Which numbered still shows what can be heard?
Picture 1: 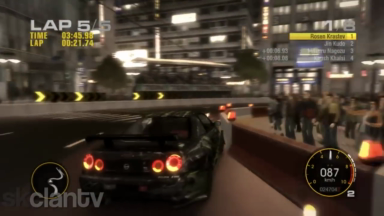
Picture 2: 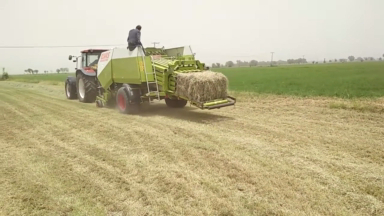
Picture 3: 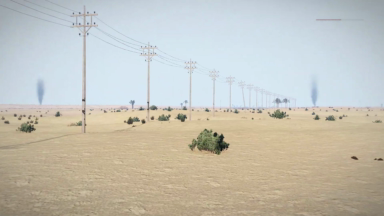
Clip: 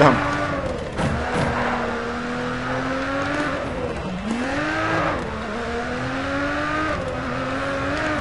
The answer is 1